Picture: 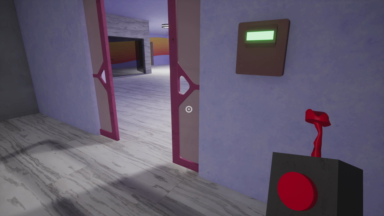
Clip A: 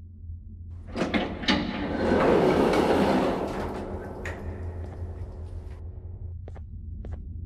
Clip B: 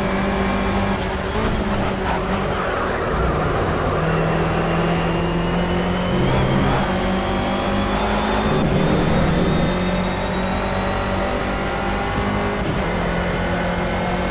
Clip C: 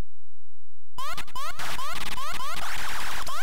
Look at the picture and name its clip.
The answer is A